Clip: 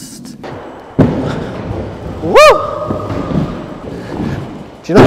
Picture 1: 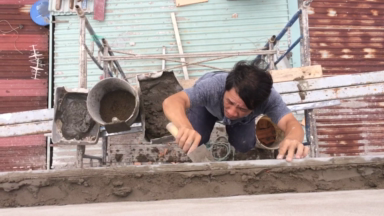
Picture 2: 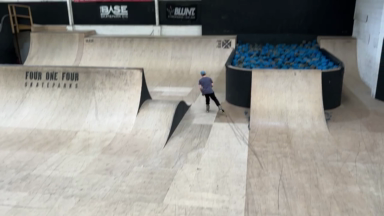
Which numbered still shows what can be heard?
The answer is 2